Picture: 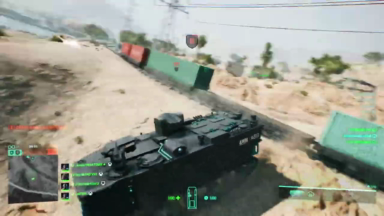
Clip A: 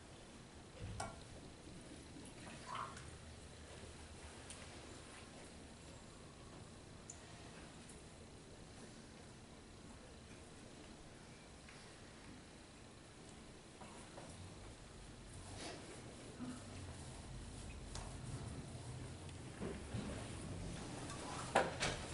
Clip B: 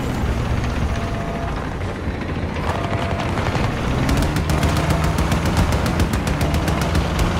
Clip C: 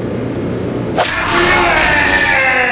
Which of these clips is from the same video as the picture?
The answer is B